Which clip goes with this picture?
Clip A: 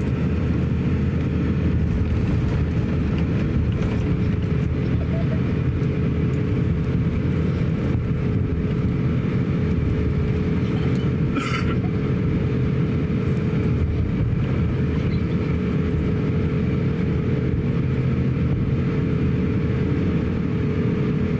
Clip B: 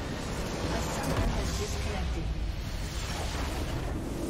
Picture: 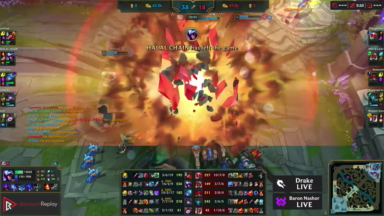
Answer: B